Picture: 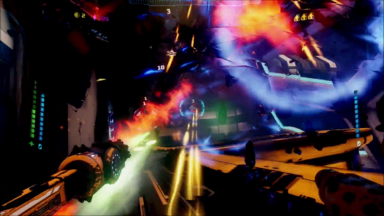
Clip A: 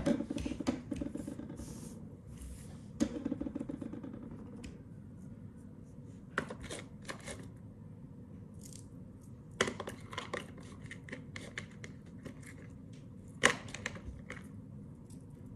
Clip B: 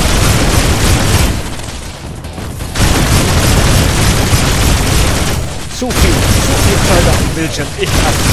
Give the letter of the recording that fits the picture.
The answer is B